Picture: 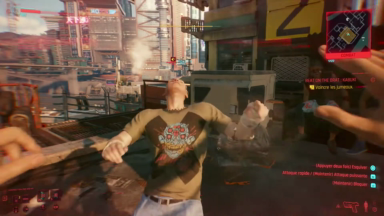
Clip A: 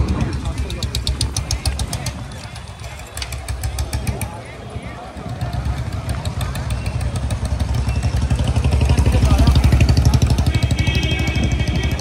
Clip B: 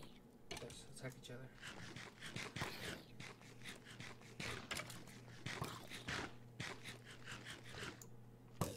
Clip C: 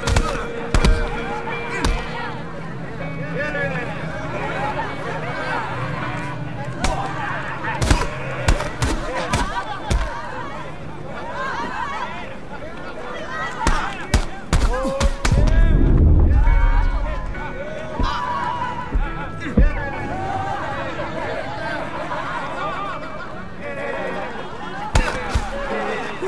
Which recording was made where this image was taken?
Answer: C